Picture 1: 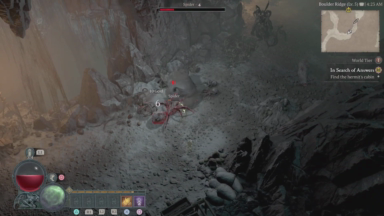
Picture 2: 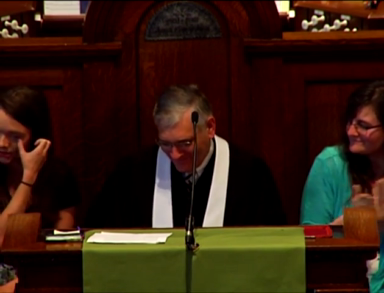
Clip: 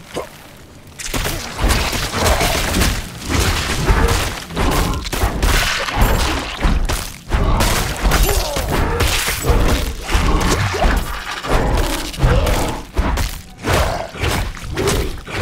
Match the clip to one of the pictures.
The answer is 1